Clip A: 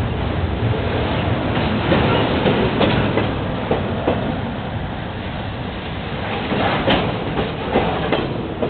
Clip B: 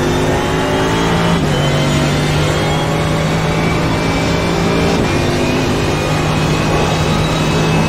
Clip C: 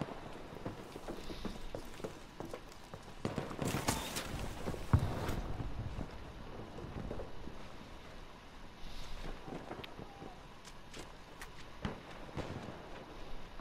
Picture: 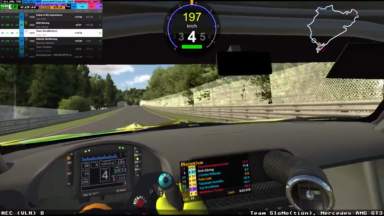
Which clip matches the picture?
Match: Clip B